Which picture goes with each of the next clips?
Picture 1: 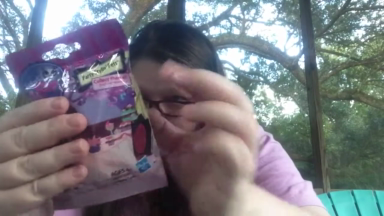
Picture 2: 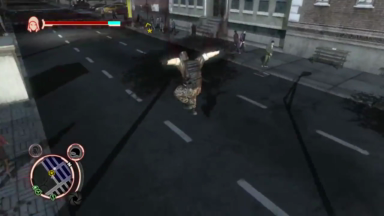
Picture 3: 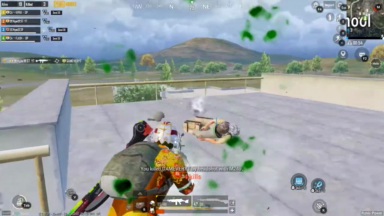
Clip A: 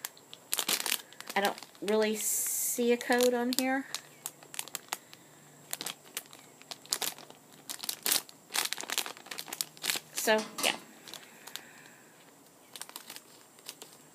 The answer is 1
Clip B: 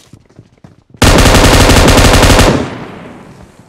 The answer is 3